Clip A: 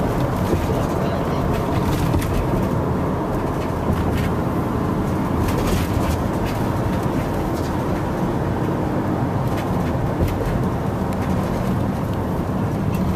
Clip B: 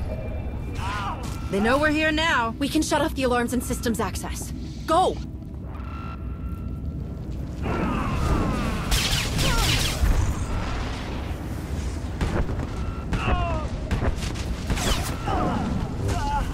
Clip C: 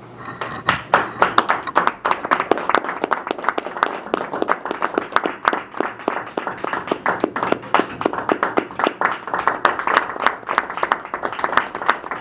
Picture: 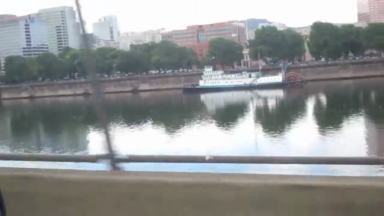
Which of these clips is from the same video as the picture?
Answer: A